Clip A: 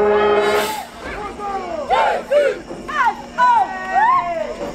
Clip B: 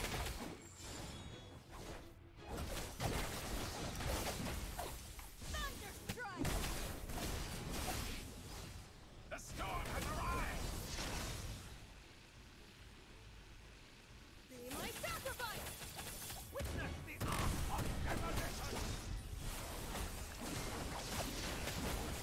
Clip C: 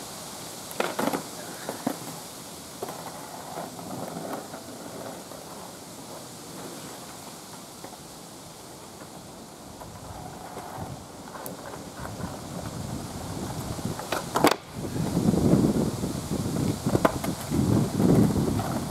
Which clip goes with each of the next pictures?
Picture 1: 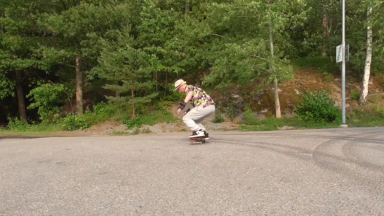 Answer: C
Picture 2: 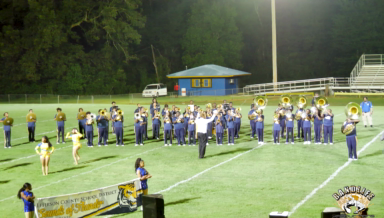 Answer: A